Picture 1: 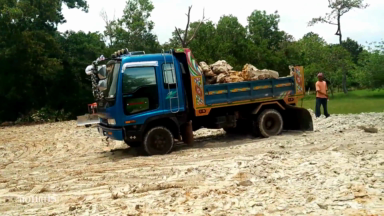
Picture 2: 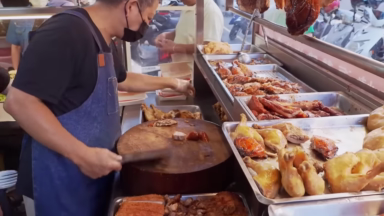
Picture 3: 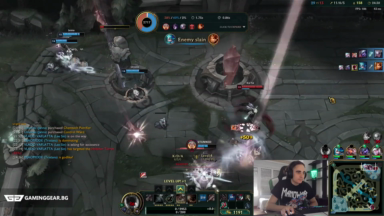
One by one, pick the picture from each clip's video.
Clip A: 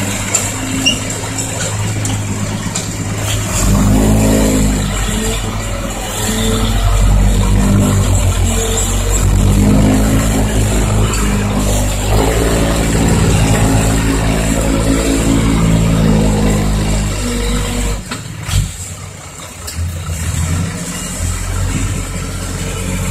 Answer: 1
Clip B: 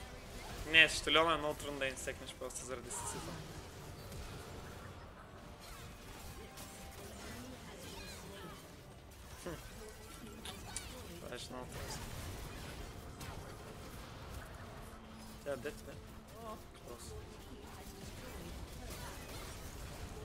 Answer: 3